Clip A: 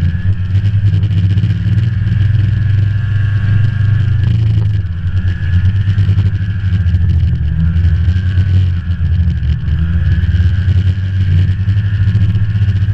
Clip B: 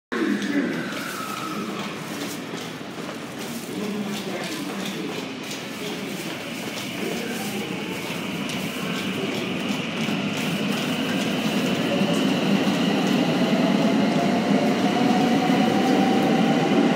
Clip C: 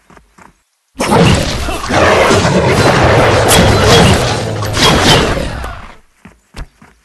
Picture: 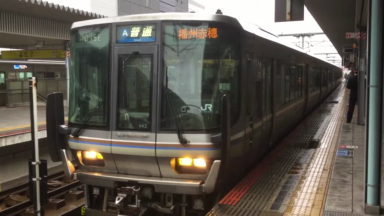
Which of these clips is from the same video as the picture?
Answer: B